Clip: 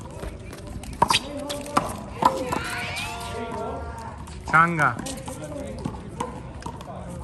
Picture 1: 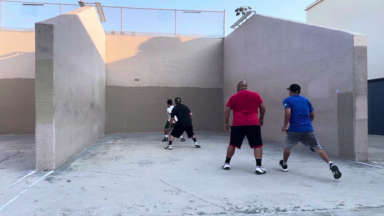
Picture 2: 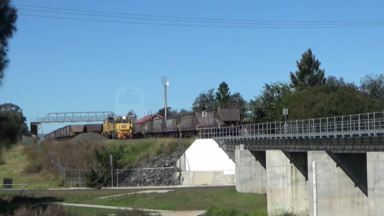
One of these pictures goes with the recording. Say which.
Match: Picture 1